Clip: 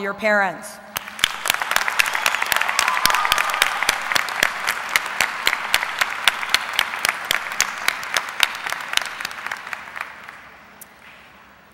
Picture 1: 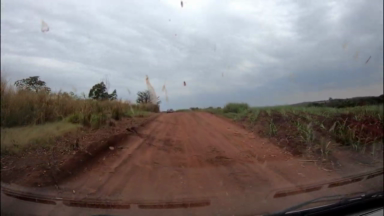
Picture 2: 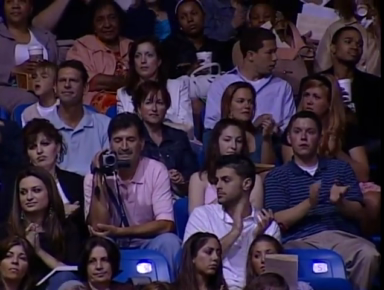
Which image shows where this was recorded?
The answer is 2